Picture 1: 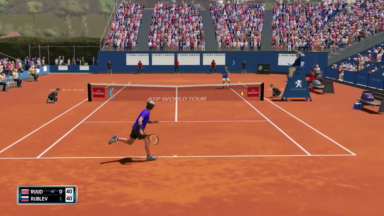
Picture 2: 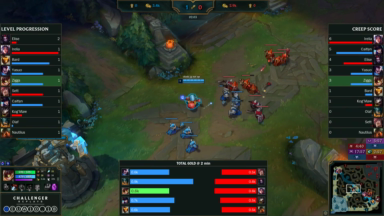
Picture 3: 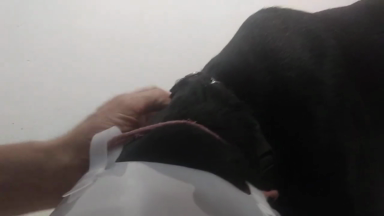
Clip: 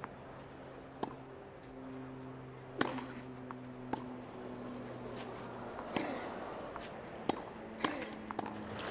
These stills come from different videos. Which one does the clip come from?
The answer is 1